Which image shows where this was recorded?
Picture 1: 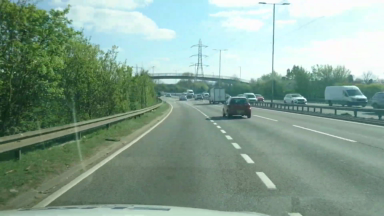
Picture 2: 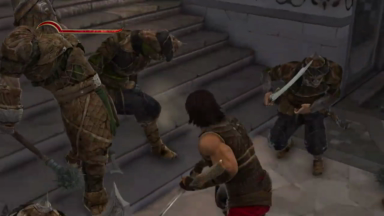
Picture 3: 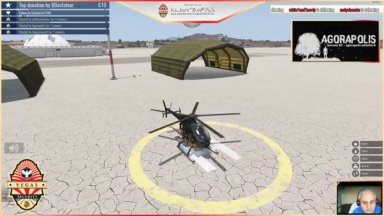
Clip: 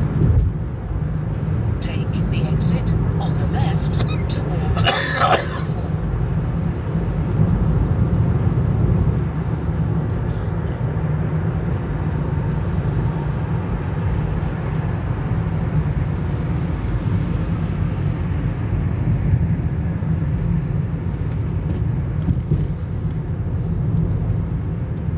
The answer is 1